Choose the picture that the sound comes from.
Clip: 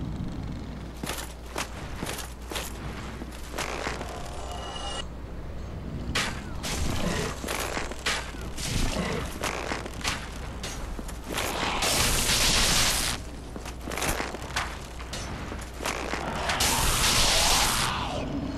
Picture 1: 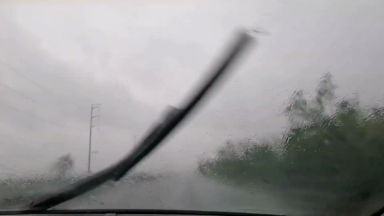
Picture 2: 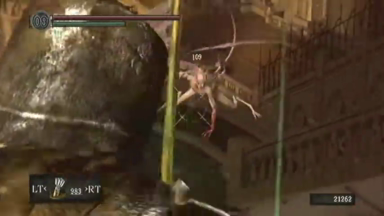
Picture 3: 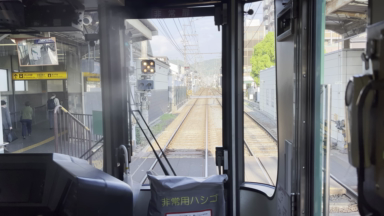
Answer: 2